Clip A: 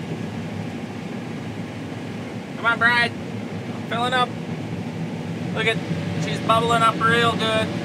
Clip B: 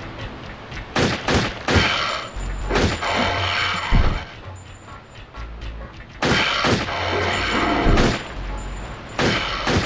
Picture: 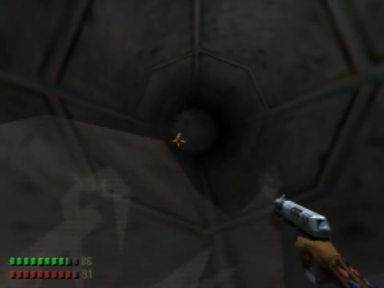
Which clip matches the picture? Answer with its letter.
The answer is B